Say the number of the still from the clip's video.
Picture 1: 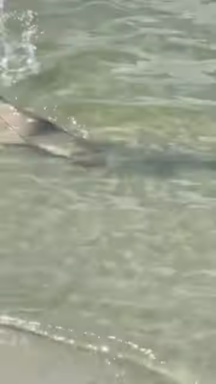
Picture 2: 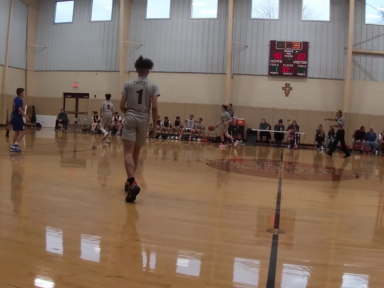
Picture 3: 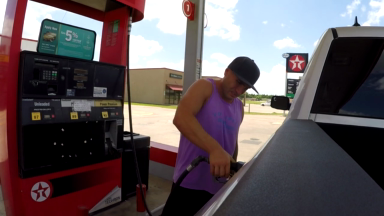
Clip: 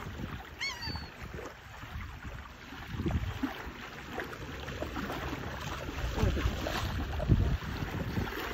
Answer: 1